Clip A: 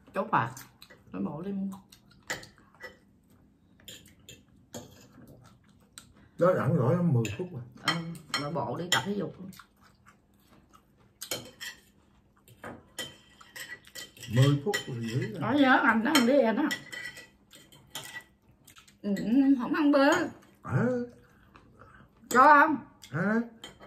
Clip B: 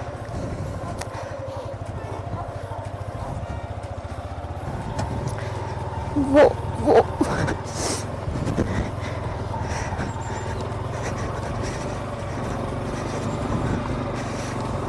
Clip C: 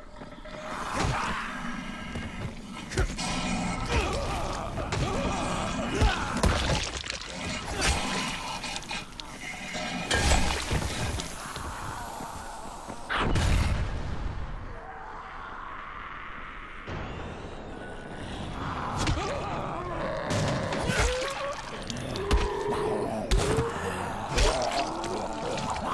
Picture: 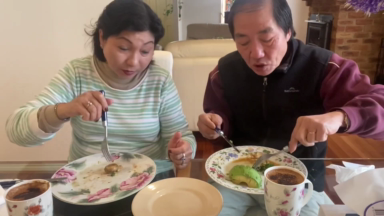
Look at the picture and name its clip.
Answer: A